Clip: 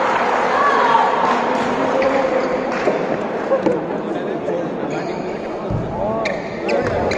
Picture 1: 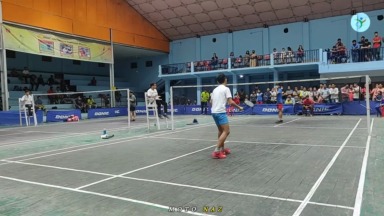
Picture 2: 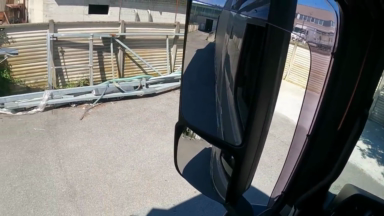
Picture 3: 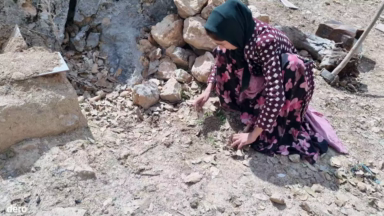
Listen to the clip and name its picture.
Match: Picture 1